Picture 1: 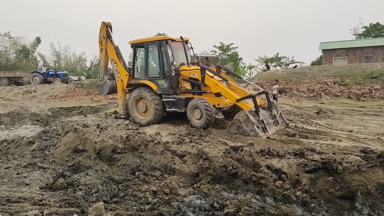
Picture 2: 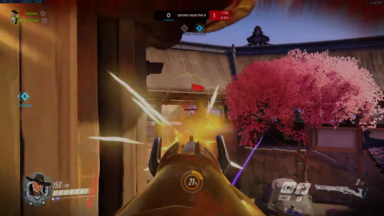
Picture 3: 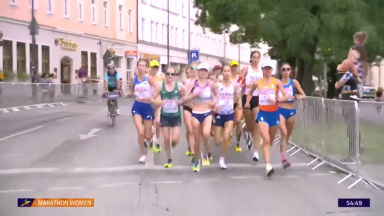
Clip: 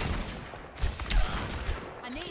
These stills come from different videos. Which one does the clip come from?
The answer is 2